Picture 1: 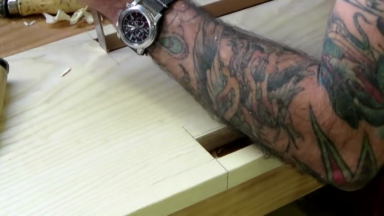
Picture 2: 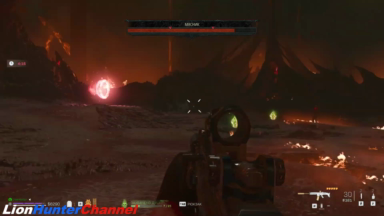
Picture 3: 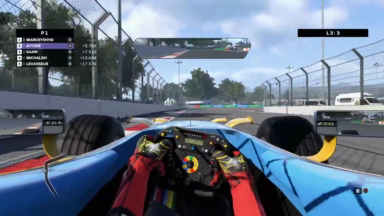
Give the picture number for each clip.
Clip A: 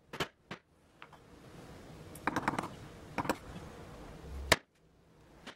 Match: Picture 1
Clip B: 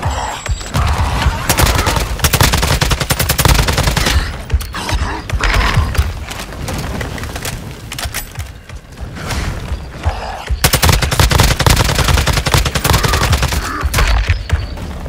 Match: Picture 2